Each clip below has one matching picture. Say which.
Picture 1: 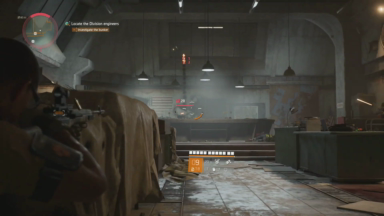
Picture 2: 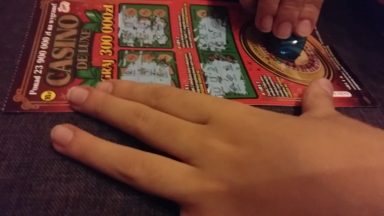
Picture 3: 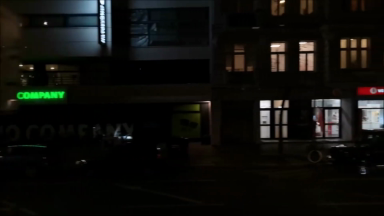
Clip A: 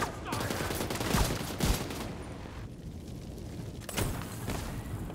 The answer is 1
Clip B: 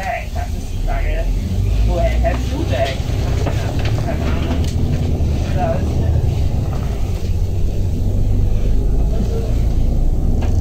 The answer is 3